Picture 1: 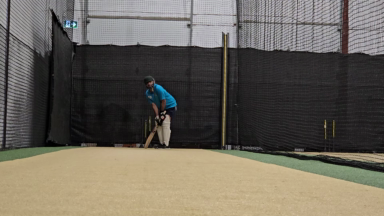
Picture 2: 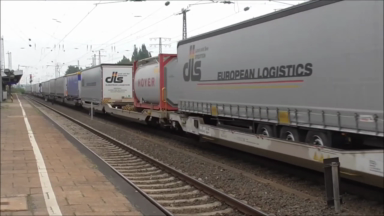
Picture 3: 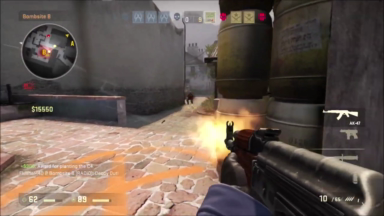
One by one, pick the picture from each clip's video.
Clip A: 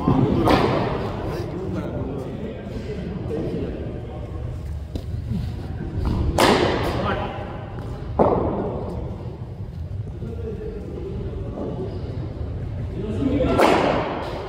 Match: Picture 1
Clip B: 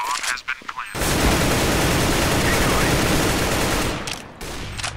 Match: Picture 3